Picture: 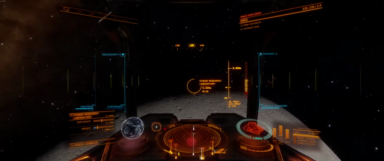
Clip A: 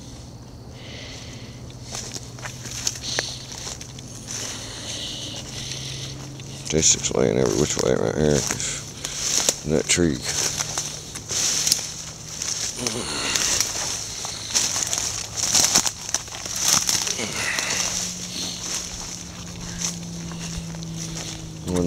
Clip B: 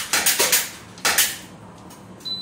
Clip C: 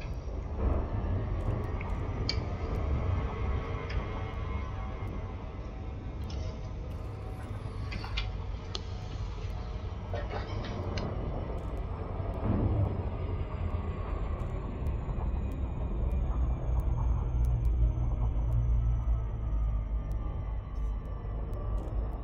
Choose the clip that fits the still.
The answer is C